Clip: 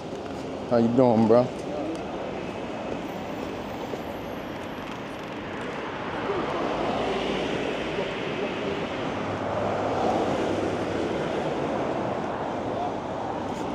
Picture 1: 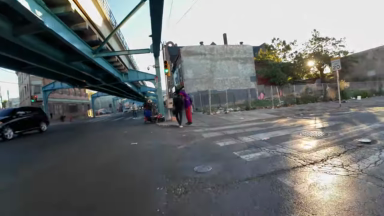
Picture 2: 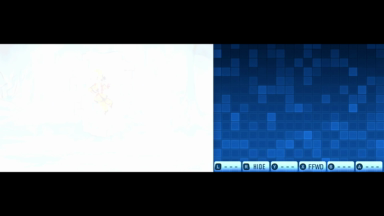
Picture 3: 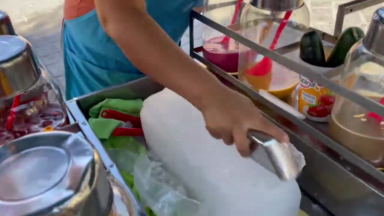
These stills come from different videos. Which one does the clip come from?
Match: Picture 1